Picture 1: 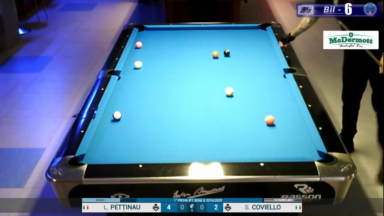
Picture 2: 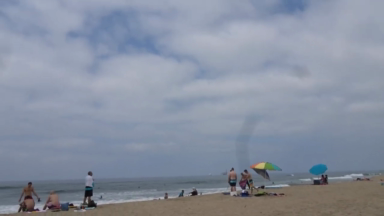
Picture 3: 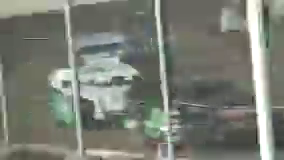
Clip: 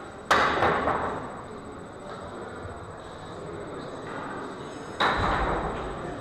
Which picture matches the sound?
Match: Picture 1